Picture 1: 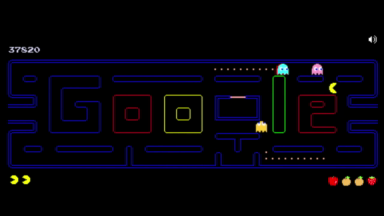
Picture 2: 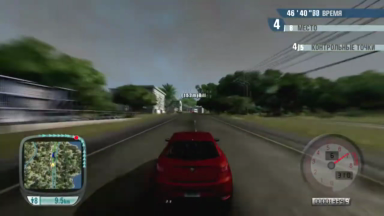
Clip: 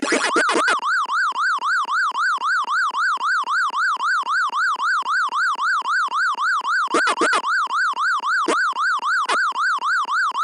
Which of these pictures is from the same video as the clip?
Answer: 1